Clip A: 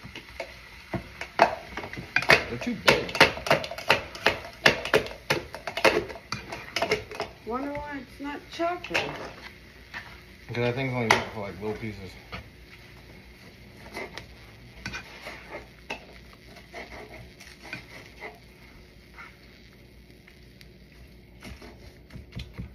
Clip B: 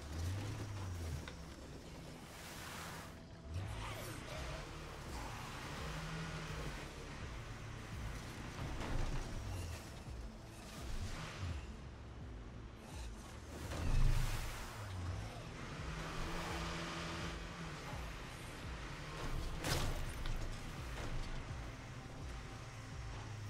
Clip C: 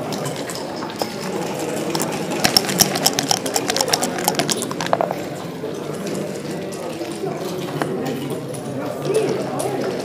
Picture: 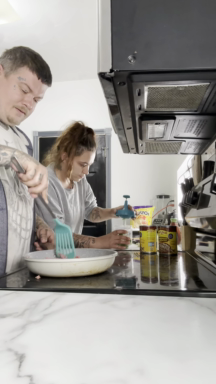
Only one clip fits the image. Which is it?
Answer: A